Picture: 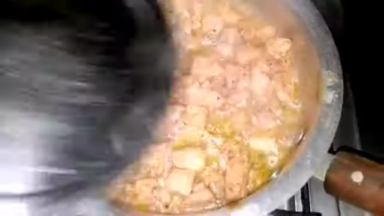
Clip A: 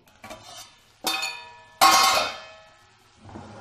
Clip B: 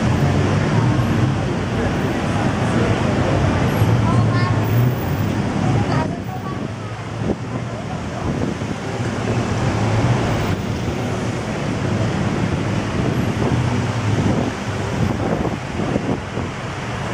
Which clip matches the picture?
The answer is A